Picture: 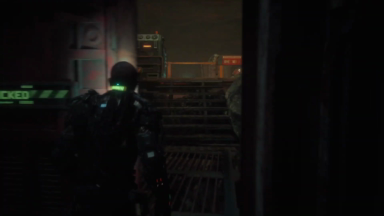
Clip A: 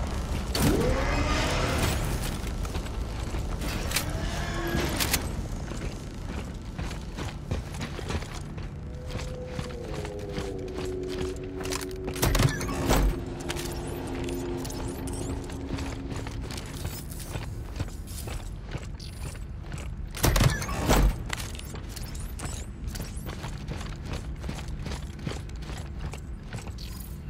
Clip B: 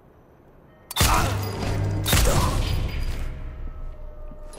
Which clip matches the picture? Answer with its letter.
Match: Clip A